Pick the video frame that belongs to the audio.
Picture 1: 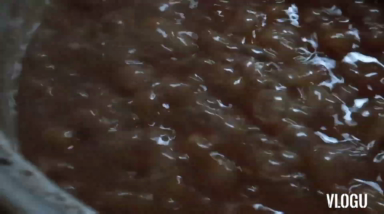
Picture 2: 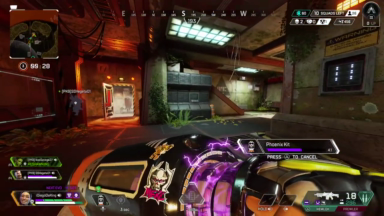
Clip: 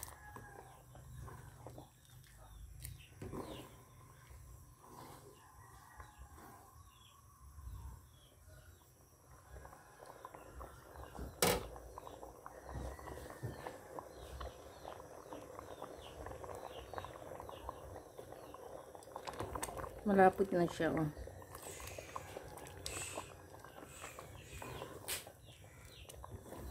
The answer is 1